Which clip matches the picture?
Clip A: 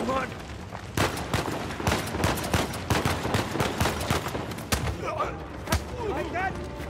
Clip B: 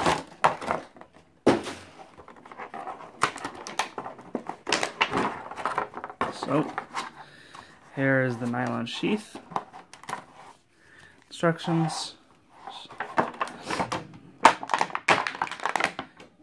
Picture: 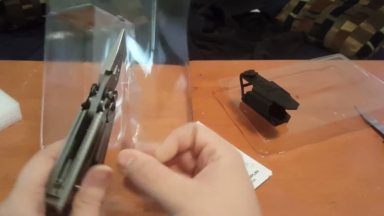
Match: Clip B